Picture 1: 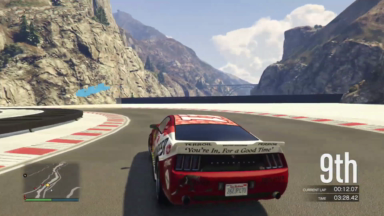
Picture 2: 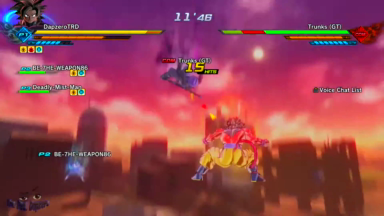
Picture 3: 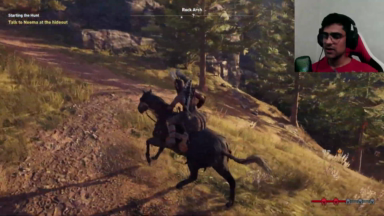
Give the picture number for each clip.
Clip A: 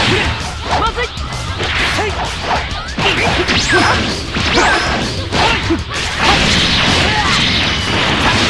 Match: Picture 2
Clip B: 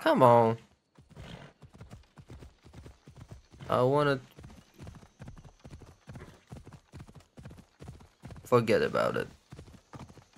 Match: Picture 3